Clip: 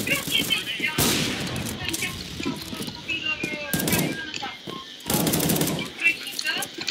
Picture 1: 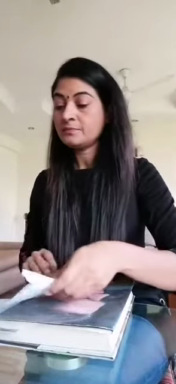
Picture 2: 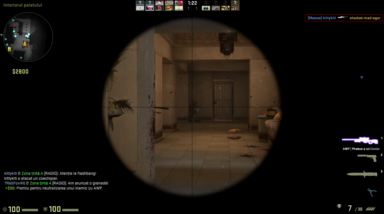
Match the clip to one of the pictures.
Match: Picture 2